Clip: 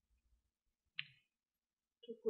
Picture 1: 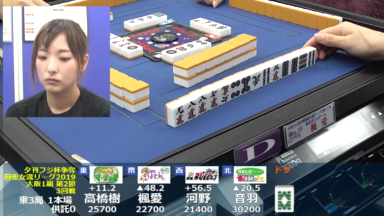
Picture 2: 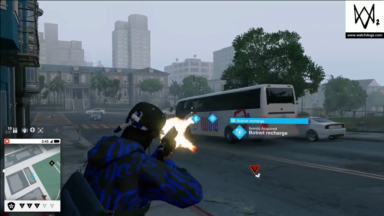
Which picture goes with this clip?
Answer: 1